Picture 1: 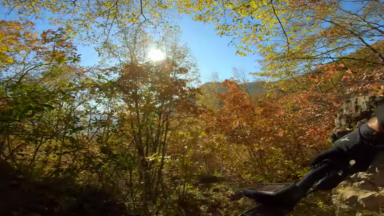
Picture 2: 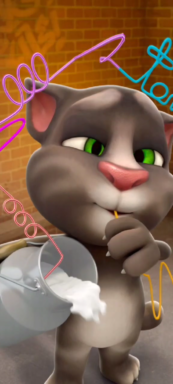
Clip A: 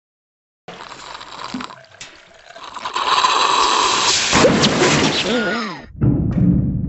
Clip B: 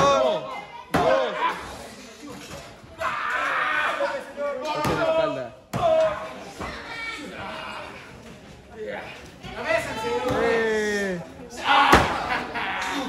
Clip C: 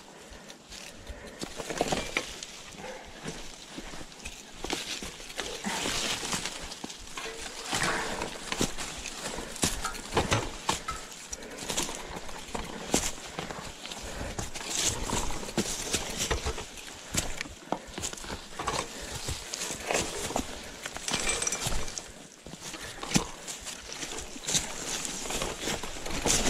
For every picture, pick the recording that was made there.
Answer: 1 C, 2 A